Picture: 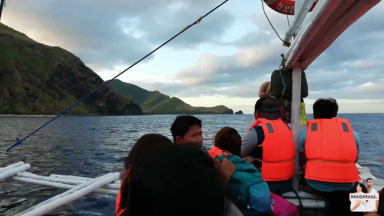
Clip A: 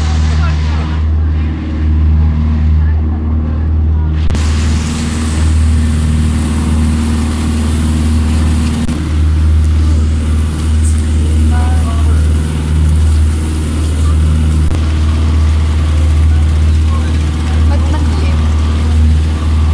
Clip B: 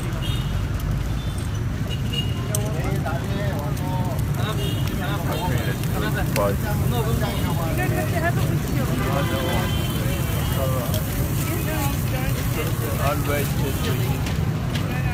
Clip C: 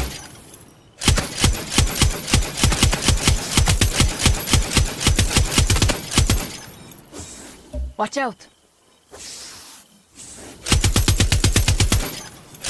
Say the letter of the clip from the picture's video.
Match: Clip A